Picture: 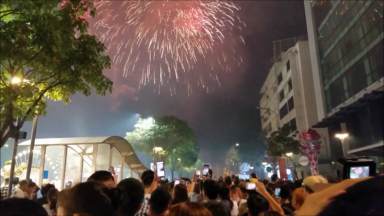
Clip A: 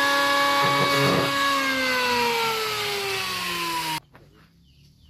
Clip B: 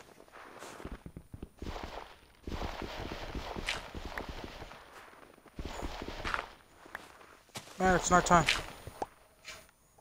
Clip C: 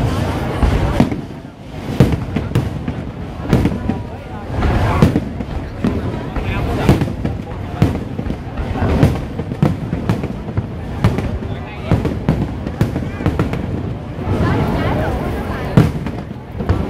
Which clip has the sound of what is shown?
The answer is C